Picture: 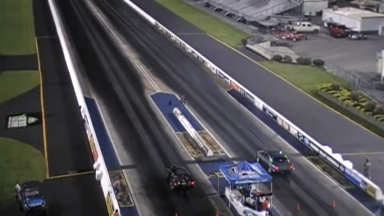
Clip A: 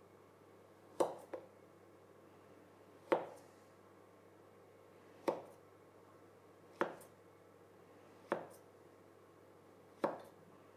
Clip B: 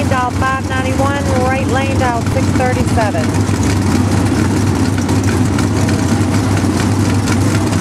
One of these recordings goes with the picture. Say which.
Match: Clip B